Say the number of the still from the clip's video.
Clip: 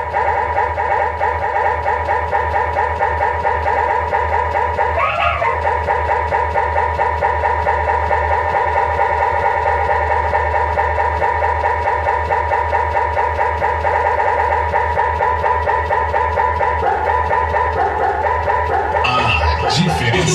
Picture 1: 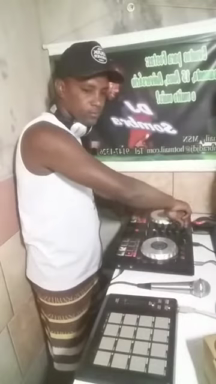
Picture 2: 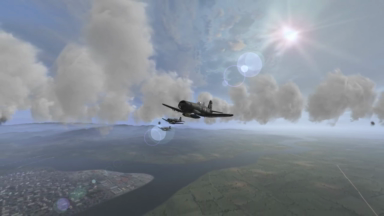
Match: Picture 1